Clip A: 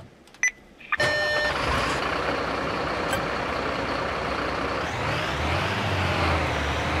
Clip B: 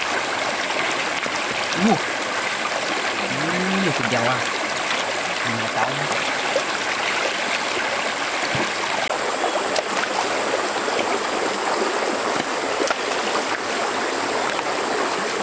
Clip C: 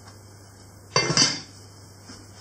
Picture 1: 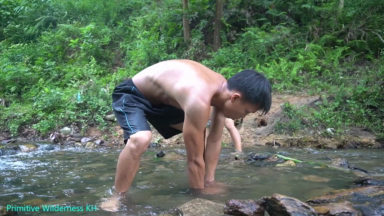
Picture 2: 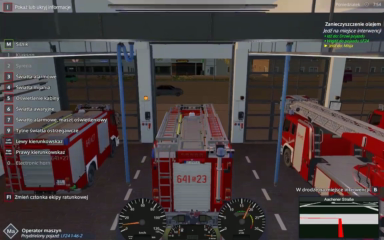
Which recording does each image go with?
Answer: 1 B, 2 A